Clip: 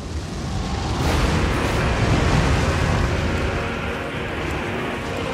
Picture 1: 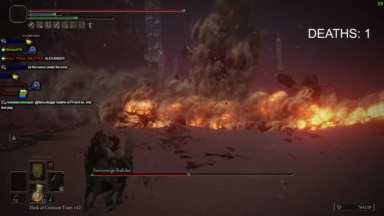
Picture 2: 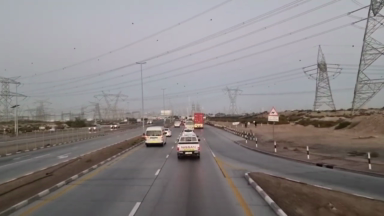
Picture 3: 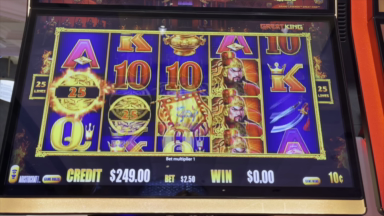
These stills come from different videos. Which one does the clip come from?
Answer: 1